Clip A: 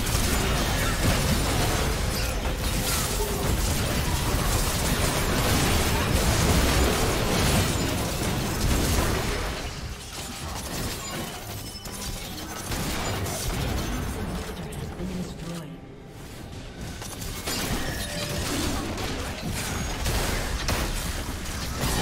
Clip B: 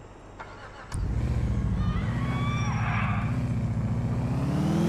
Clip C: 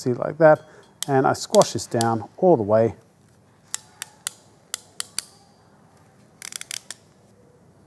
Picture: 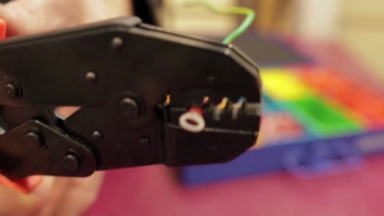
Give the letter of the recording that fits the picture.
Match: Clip C